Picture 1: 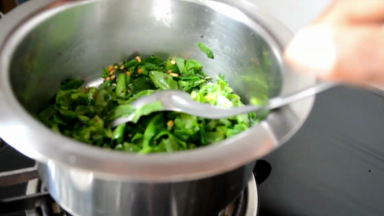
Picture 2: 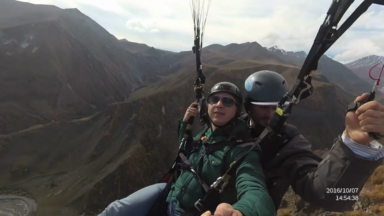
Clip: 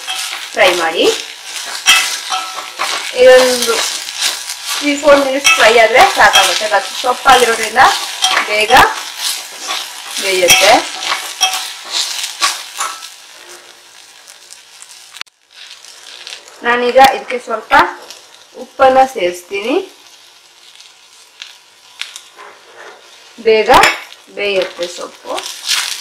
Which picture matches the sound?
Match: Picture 1